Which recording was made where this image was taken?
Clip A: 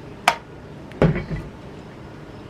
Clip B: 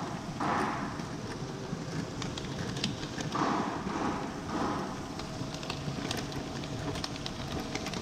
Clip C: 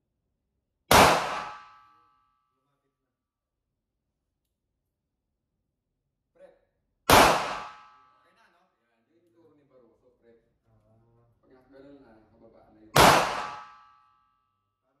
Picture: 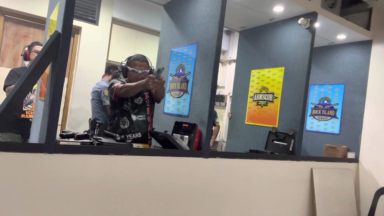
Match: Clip C